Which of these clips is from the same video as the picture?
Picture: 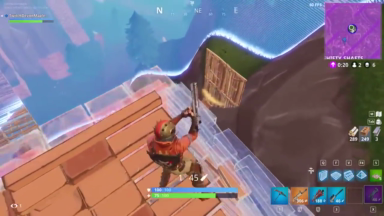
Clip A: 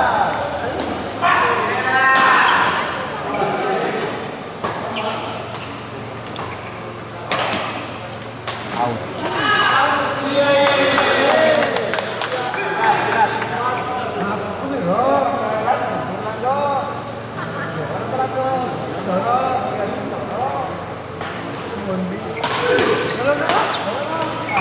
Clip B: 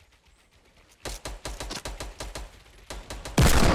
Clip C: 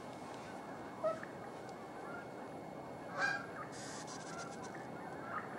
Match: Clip B